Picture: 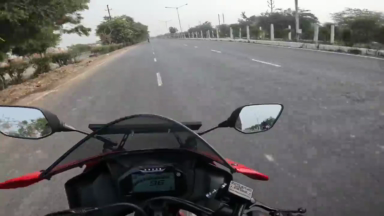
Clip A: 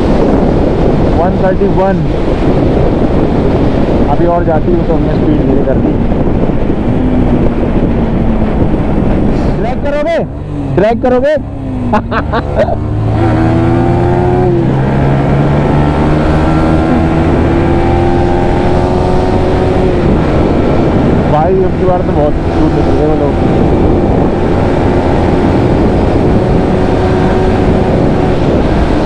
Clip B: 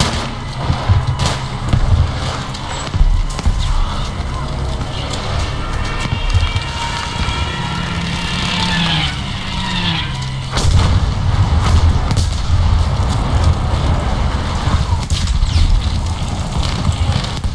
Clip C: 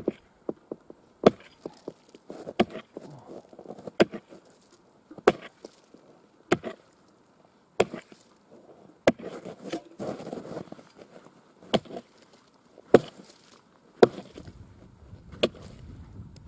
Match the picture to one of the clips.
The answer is A